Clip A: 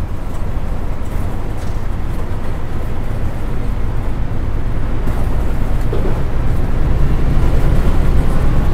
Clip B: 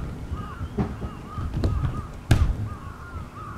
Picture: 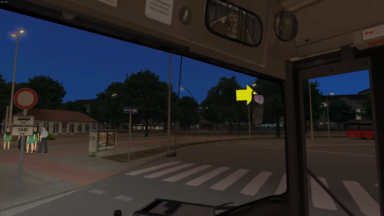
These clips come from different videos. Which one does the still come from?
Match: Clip A